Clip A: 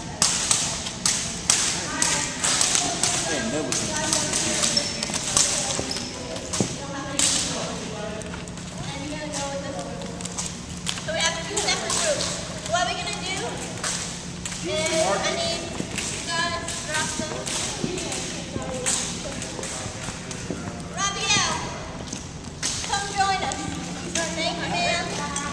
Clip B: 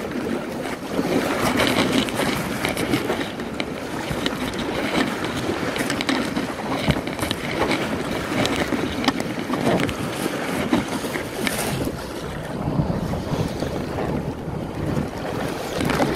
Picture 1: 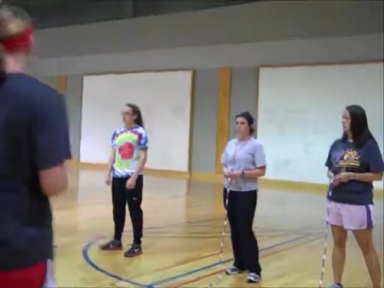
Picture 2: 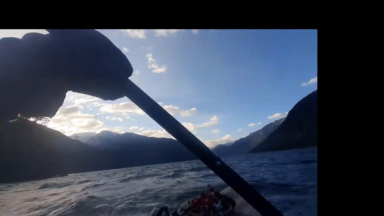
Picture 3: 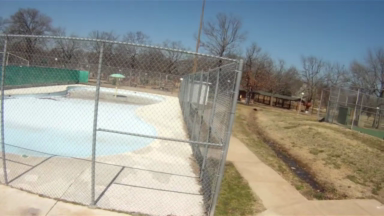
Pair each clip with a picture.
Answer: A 1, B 2